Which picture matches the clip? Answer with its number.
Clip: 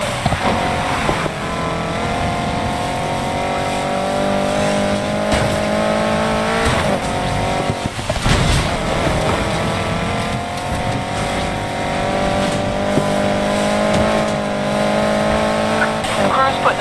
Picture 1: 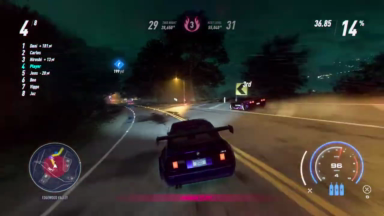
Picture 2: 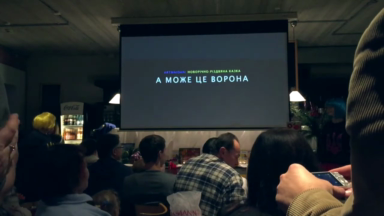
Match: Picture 1